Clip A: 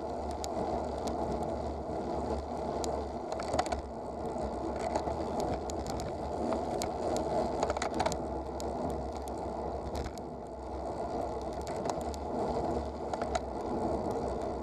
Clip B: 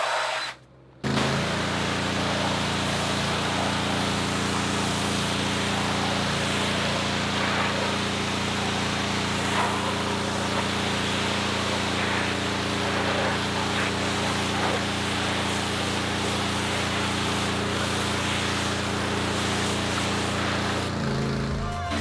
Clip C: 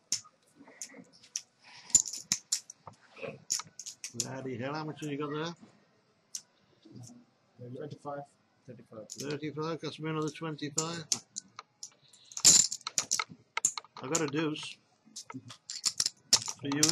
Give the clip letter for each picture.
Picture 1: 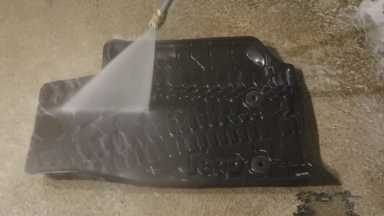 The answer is B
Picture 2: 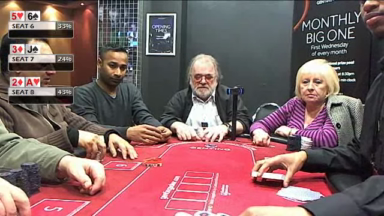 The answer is C